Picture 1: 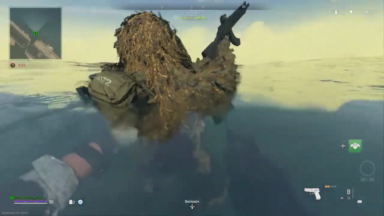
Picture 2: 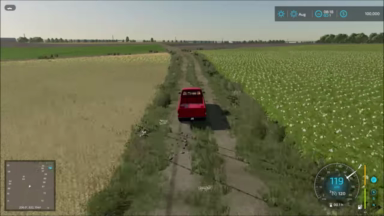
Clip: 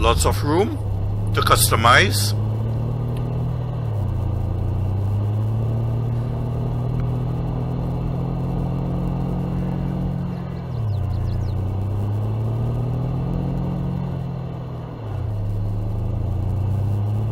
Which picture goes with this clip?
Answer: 2